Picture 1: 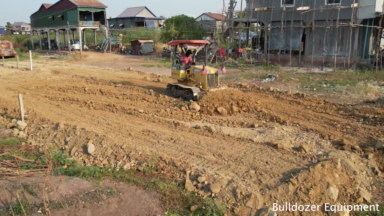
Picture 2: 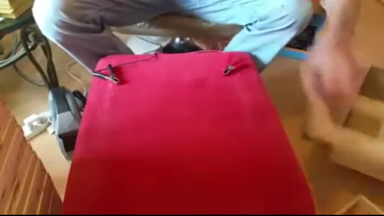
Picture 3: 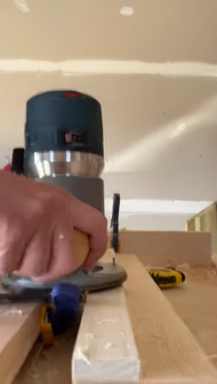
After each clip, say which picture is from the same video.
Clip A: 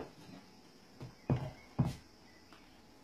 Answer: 2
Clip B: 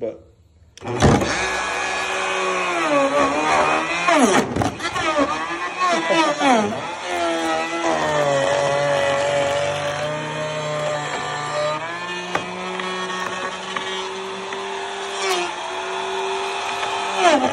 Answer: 3